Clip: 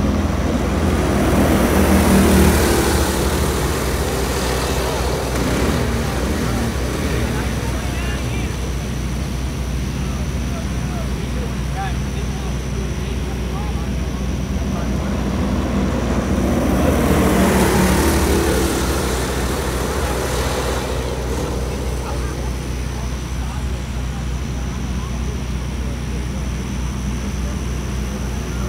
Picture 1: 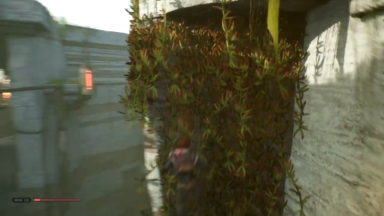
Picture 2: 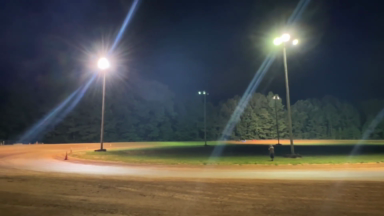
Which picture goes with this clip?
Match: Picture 2